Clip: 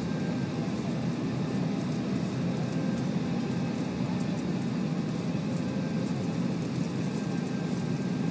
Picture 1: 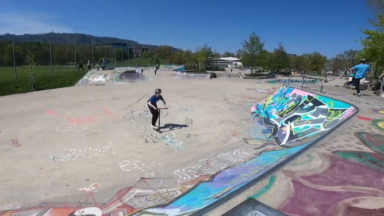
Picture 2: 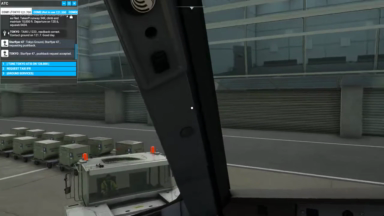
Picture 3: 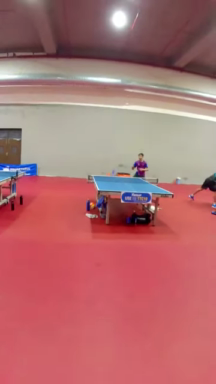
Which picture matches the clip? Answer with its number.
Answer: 2